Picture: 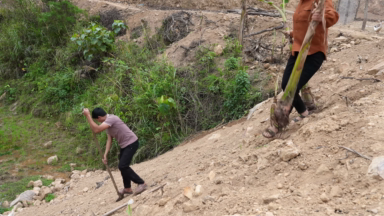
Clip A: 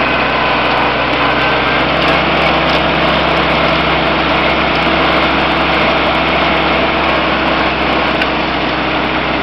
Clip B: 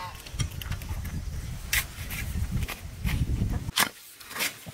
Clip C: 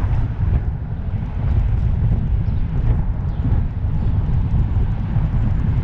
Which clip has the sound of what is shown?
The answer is B